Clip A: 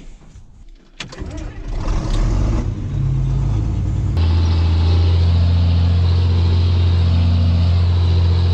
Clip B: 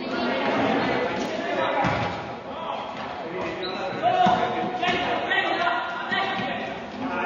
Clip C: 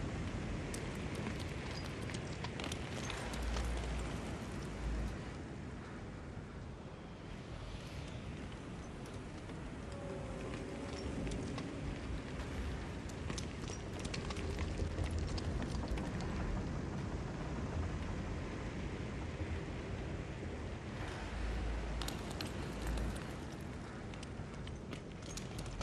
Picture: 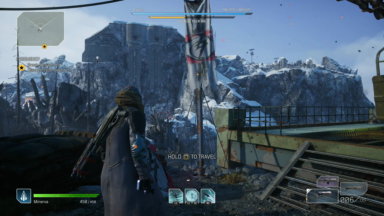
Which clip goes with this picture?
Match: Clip C